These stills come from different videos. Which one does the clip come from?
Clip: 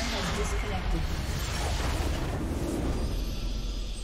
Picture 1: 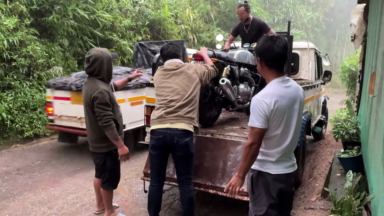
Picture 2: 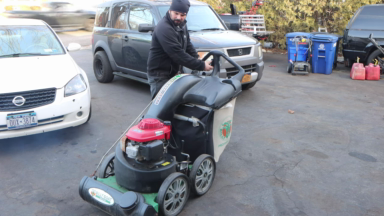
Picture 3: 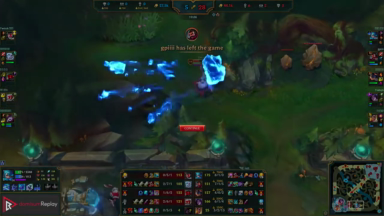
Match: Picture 3